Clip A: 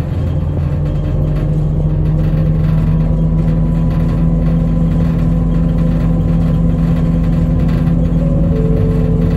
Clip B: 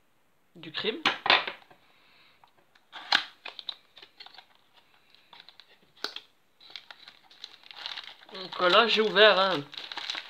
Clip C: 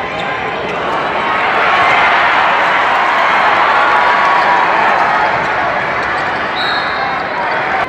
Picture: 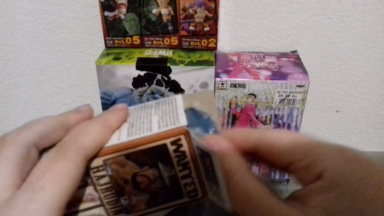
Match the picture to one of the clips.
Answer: B